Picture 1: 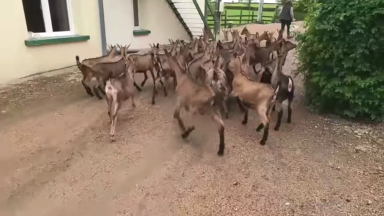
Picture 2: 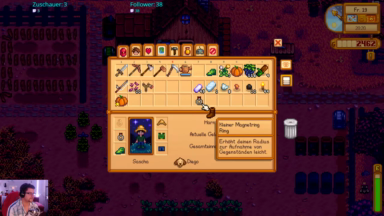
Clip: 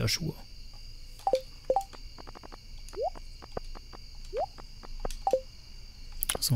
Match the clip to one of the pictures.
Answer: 2